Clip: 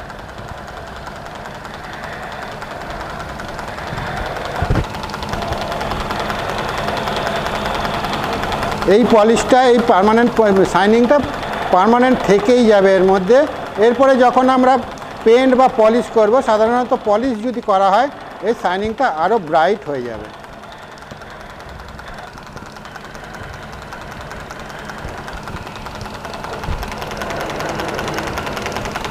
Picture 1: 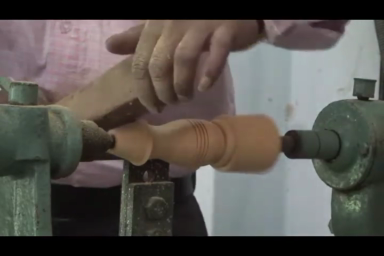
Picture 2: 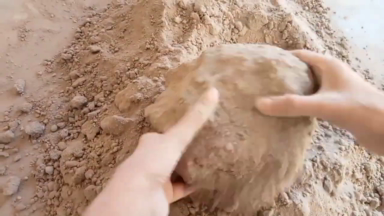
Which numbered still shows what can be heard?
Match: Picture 1